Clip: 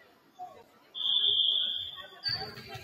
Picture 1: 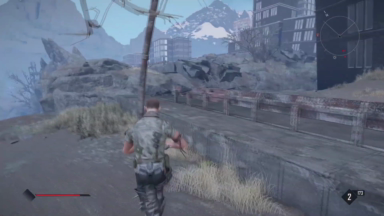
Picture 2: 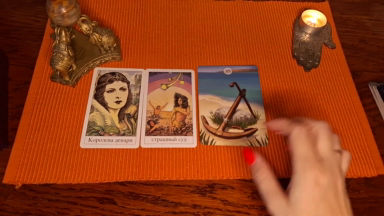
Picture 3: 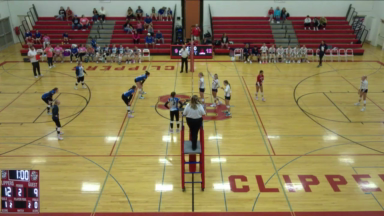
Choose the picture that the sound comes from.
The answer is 3